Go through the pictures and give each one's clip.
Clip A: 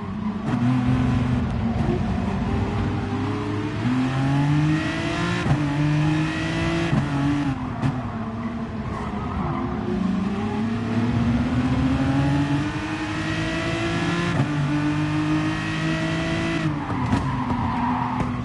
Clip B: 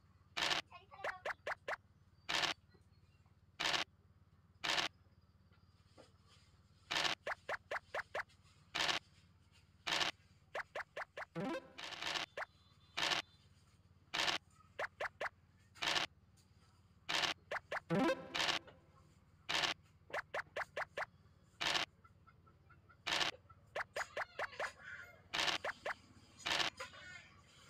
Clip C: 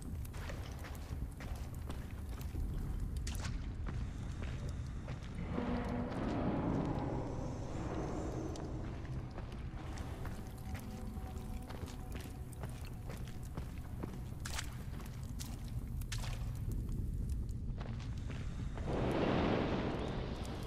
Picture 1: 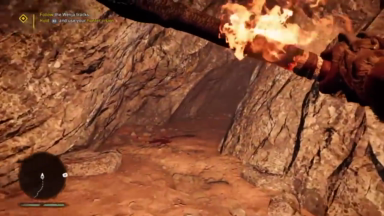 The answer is C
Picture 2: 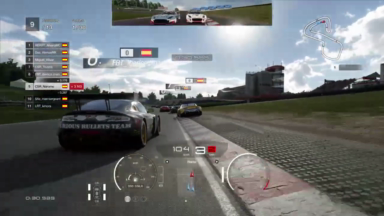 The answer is A